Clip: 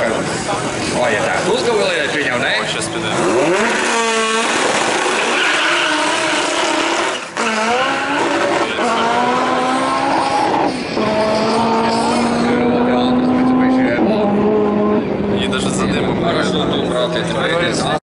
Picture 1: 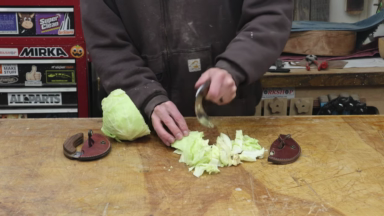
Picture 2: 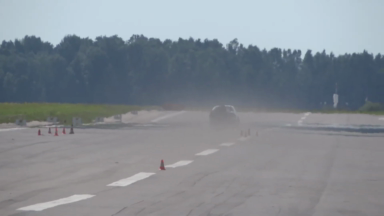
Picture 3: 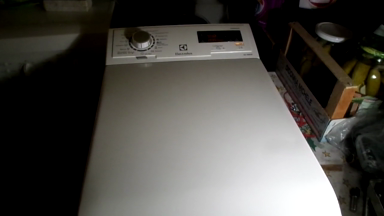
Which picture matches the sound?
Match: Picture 2